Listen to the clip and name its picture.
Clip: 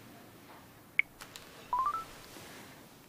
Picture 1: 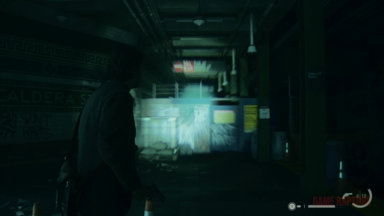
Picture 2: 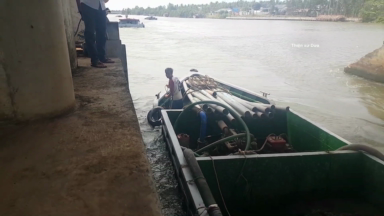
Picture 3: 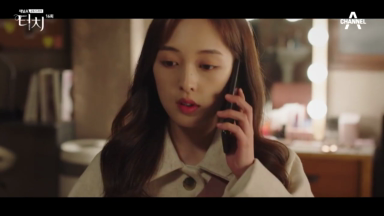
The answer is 3